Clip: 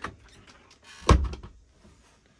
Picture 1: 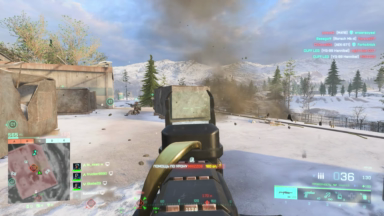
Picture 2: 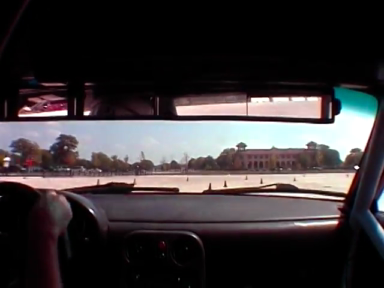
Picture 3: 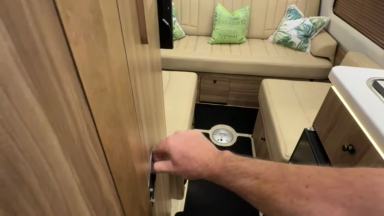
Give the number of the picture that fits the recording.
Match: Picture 3